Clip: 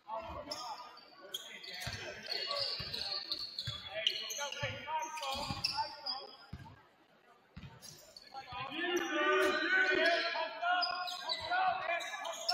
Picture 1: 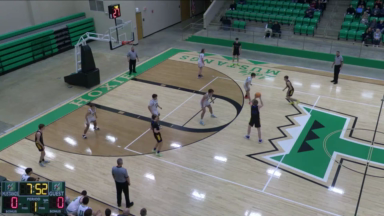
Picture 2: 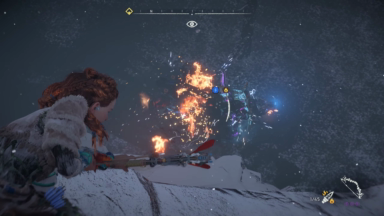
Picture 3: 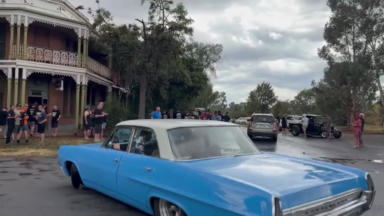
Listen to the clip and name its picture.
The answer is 1